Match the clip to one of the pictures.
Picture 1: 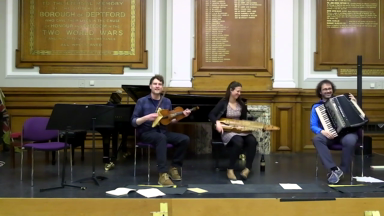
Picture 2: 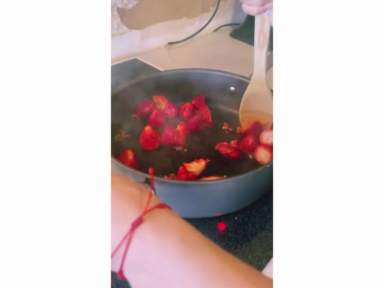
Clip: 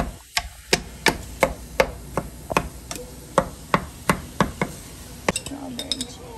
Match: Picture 2